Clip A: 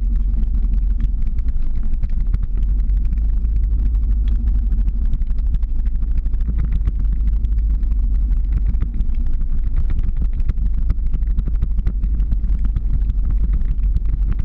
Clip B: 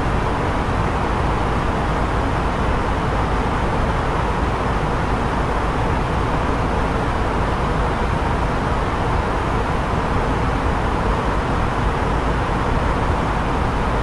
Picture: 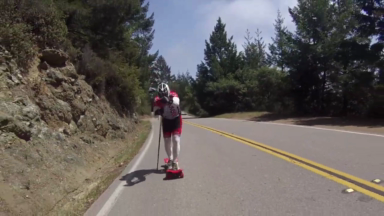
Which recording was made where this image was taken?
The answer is A